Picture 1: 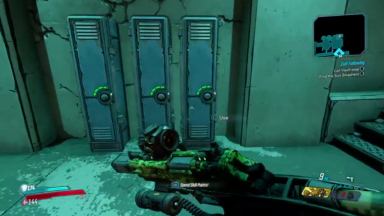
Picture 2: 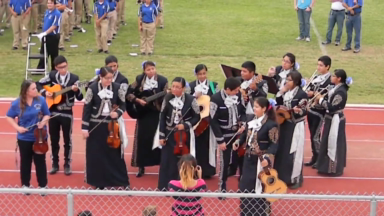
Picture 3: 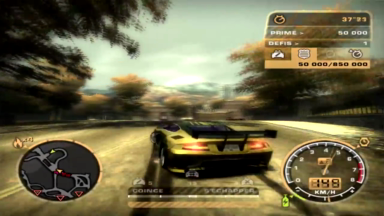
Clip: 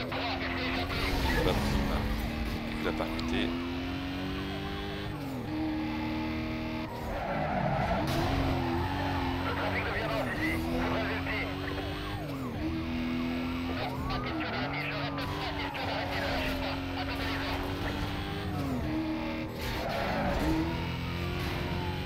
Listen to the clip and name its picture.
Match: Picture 3